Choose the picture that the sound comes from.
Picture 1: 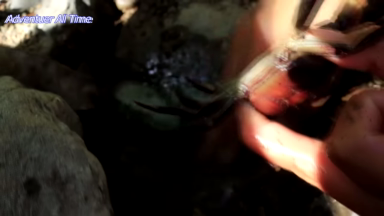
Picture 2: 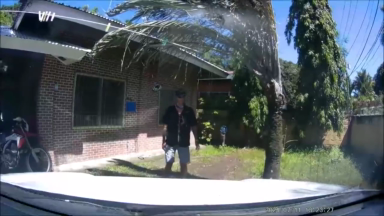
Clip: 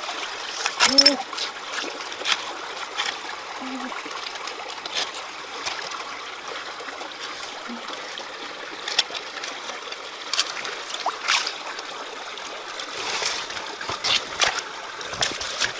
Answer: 1